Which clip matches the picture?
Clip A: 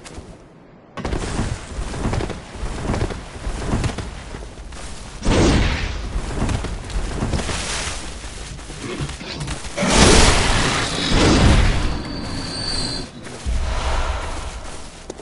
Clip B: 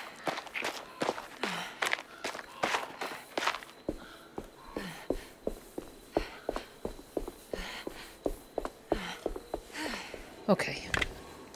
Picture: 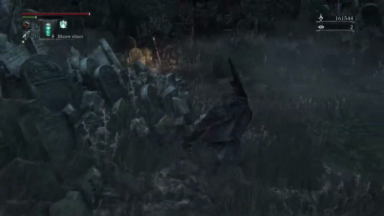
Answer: A